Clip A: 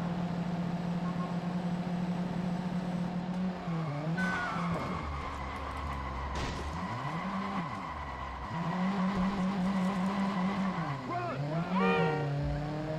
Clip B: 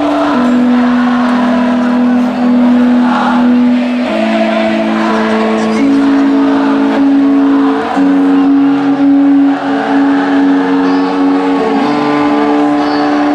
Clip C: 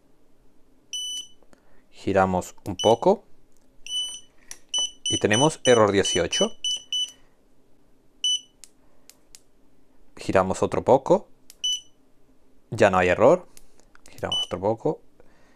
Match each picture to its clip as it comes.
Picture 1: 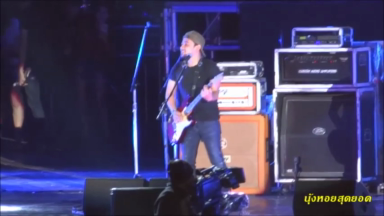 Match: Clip B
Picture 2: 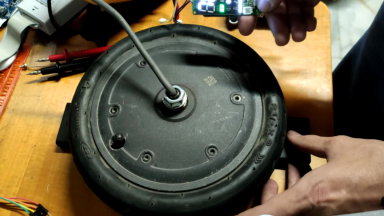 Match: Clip C